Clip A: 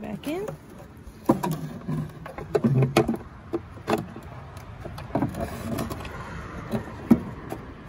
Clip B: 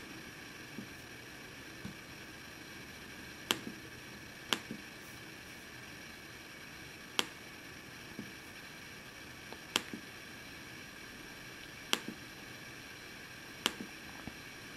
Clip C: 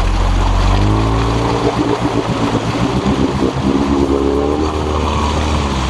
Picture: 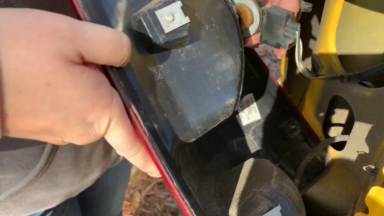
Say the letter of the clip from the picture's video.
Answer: A